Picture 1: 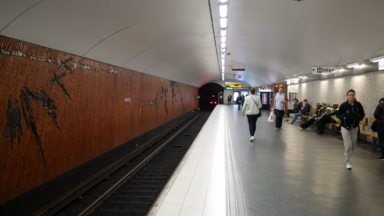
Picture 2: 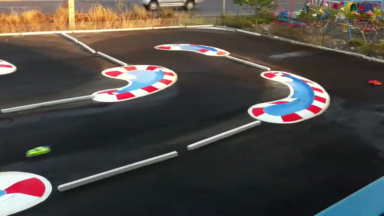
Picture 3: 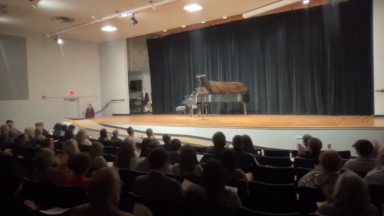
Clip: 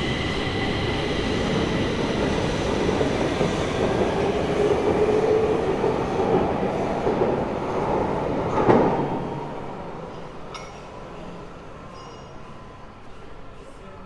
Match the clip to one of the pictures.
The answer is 1